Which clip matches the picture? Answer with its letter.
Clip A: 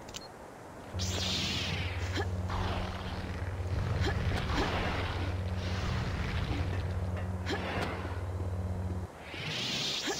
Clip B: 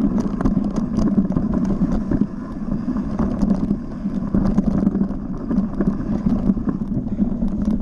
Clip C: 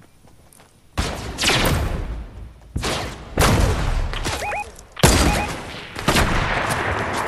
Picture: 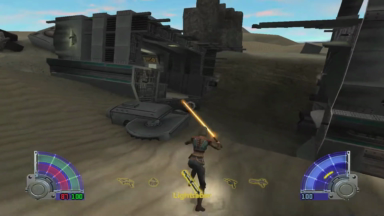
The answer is A